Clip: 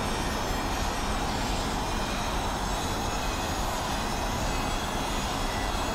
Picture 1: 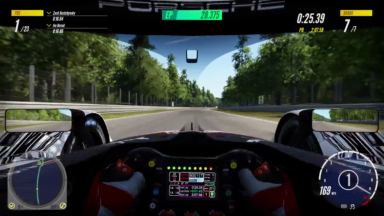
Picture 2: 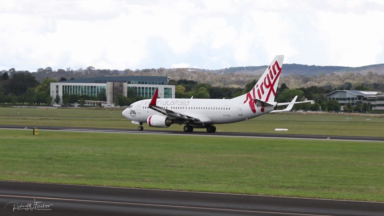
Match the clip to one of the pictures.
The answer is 1